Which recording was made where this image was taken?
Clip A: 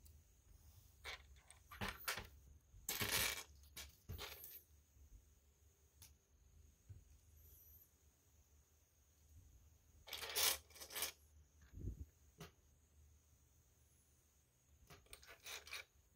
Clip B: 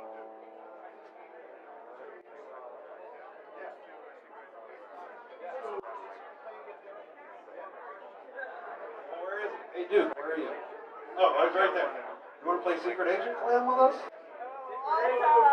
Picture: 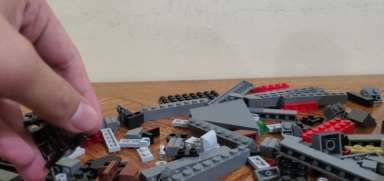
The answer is A